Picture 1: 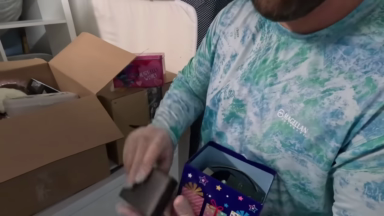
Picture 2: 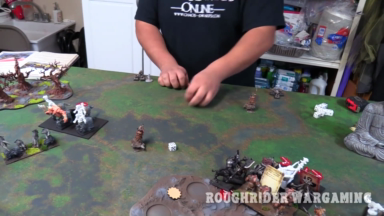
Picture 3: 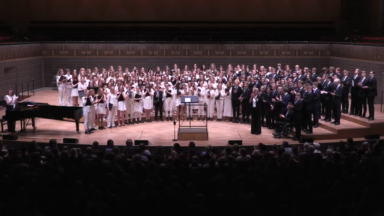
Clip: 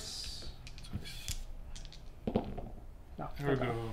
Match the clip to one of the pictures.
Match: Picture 2